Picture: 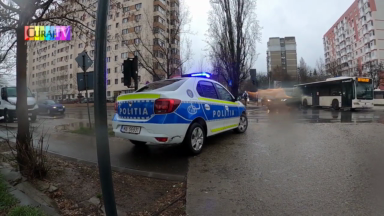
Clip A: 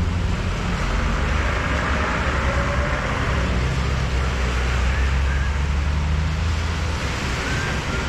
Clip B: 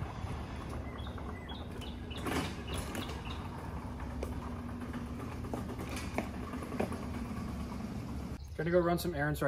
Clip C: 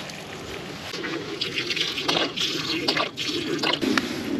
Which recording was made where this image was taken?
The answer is A